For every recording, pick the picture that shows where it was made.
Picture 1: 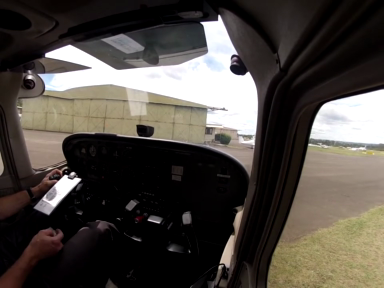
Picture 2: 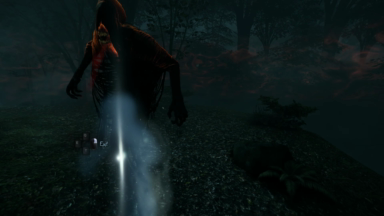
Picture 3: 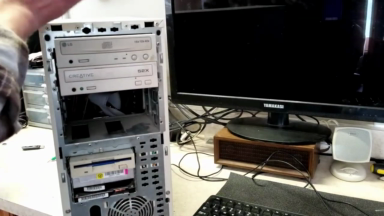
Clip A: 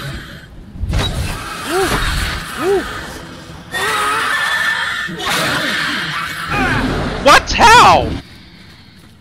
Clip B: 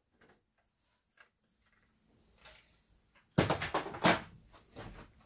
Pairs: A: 2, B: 3